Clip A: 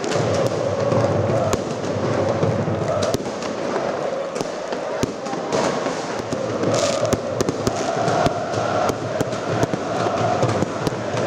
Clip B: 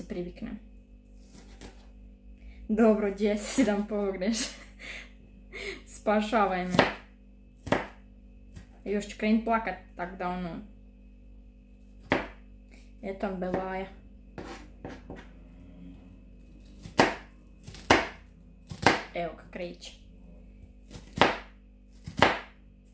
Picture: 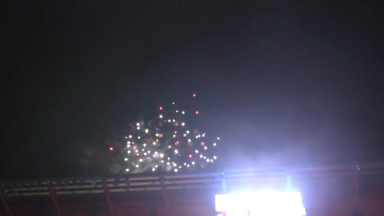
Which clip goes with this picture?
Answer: A